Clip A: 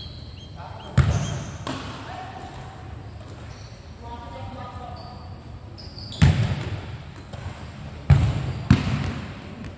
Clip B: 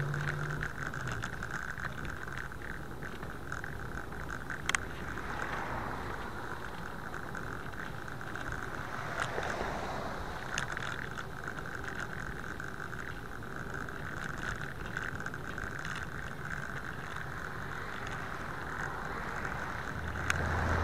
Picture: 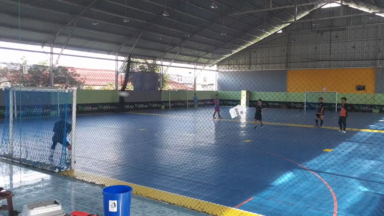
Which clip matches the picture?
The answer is A